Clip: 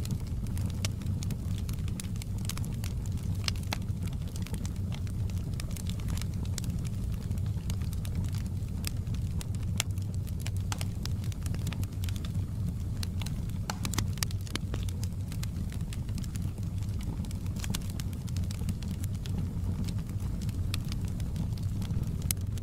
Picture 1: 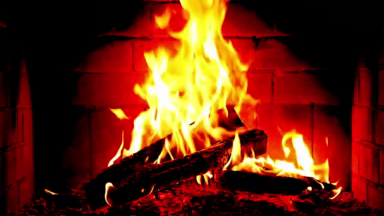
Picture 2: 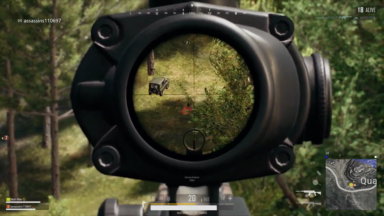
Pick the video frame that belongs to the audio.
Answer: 1